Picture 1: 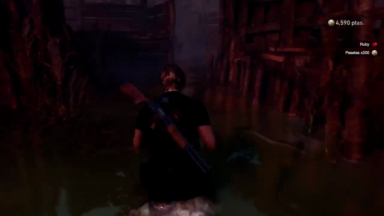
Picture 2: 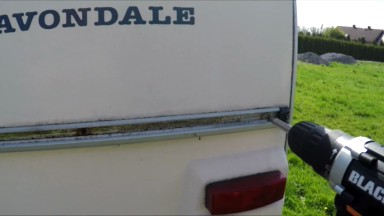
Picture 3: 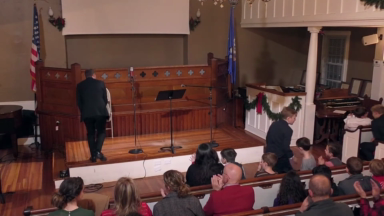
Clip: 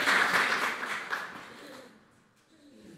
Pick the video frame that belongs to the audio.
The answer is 3